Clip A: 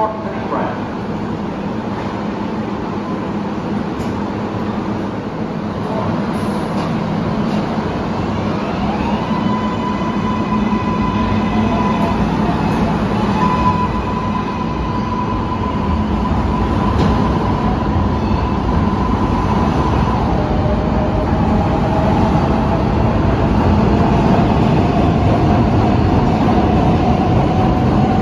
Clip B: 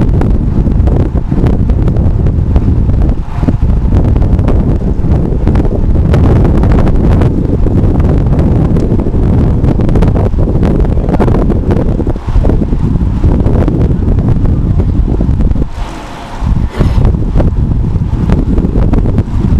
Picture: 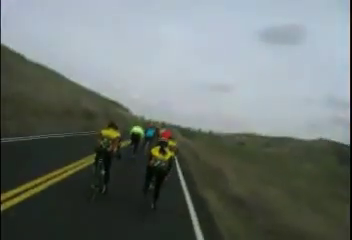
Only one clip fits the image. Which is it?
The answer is B